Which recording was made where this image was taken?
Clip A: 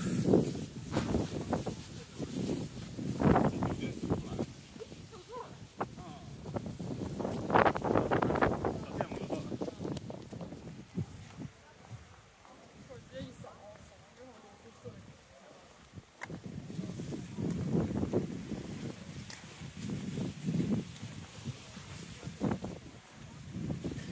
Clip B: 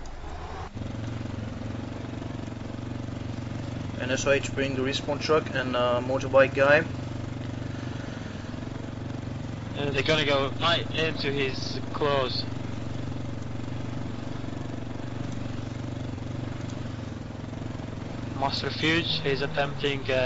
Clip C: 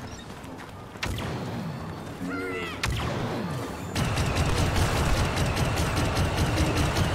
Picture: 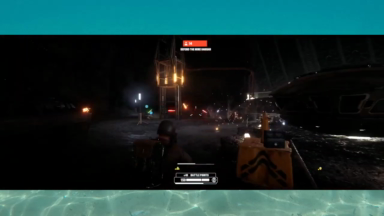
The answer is C